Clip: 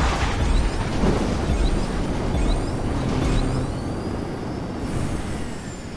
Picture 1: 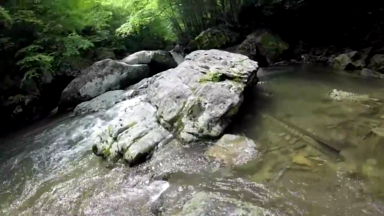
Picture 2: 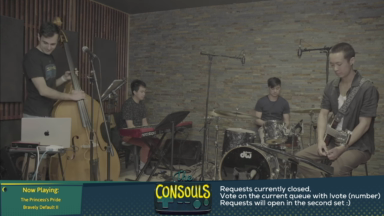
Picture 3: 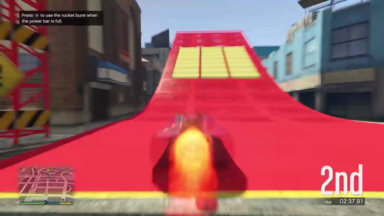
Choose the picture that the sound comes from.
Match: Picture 3